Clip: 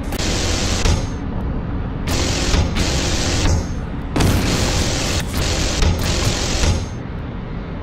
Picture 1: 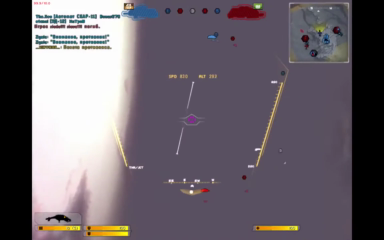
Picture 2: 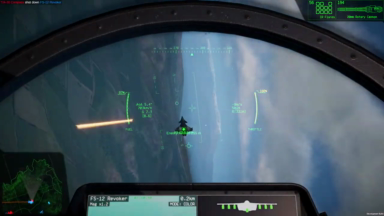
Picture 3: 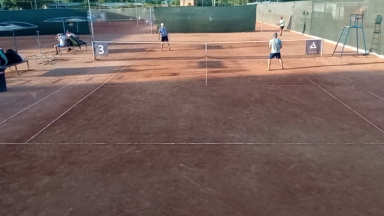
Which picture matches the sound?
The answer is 2